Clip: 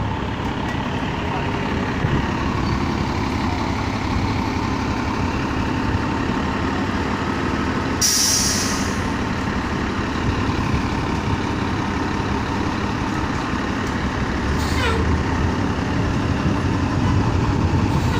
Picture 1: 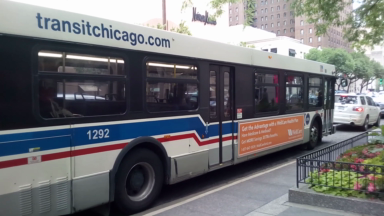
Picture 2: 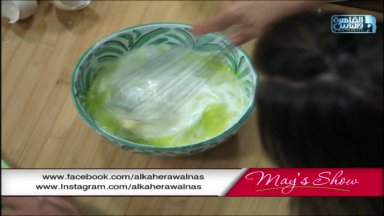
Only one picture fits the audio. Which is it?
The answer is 1